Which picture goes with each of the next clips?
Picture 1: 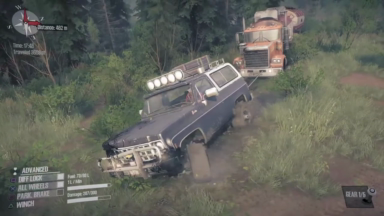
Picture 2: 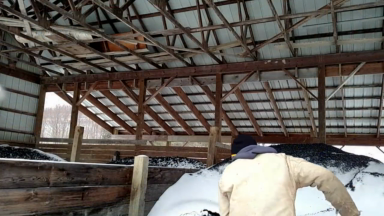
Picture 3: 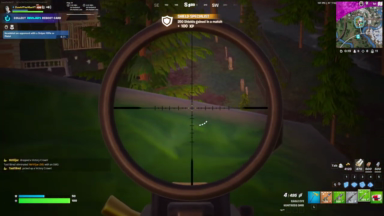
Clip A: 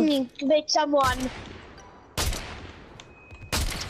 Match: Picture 3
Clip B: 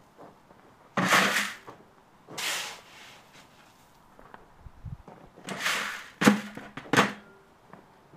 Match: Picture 2